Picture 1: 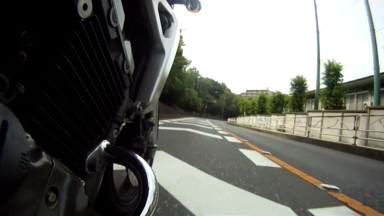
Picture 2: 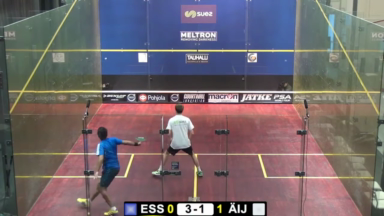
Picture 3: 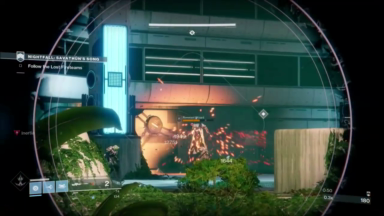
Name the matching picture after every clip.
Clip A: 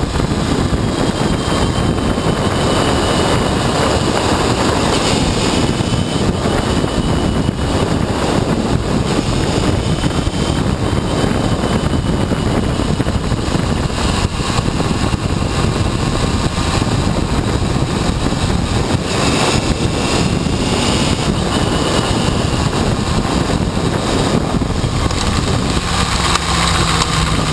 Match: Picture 1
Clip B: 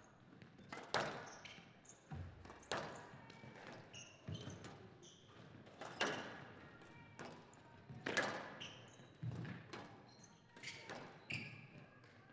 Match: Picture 2